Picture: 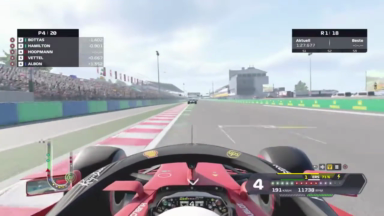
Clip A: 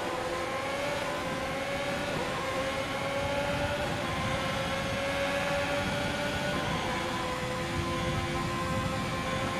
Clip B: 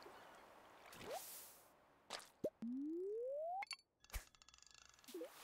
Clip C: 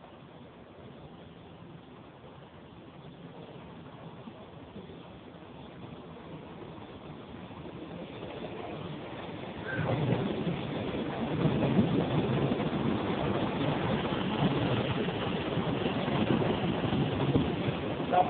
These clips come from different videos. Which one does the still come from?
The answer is A